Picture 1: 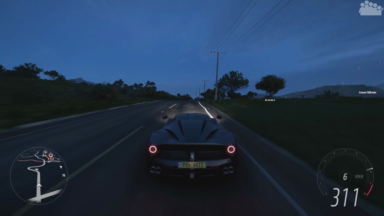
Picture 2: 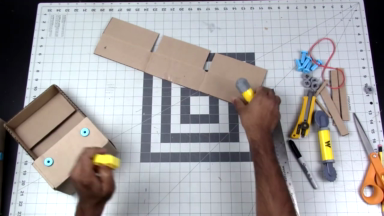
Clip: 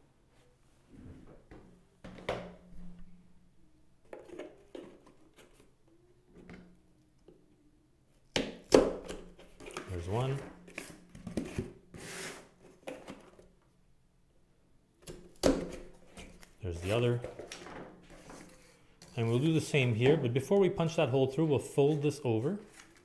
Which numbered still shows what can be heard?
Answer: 2